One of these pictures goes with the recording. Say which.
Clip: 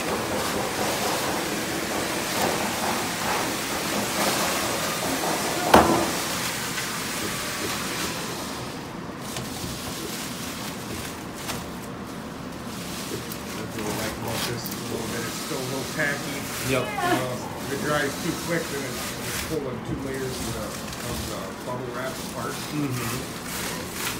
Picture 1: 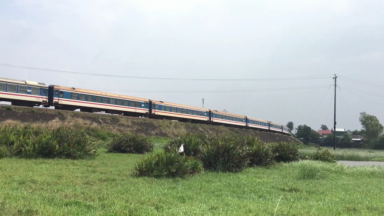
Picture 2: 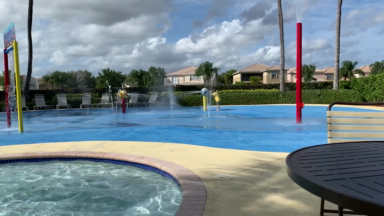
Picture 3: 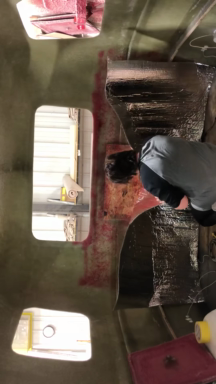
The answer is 3